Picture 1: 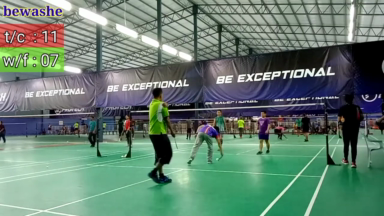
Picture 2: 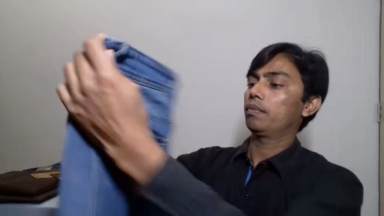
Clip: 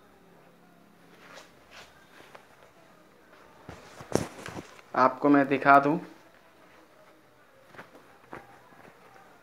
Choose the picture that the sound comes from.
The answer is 2